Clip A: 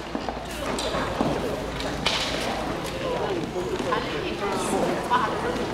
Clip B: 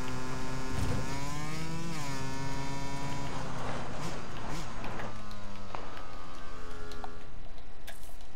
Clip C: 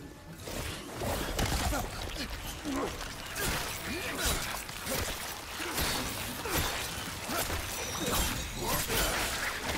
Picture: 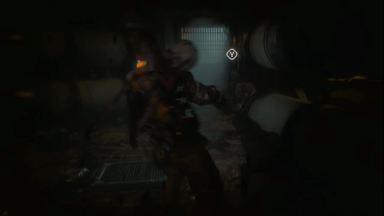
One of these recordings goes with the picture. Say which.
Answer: C